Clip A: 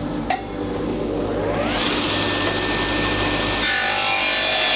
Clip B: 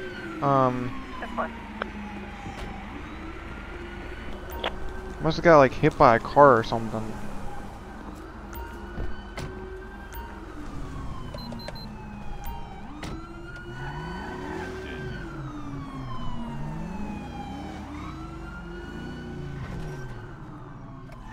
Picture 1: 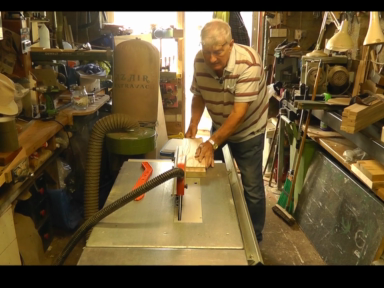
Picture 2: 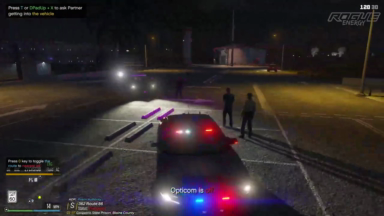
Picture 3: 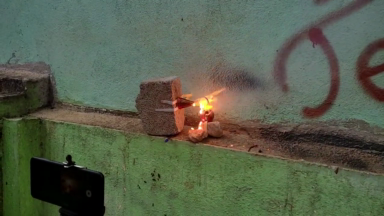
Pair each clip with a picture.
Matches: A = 1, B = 2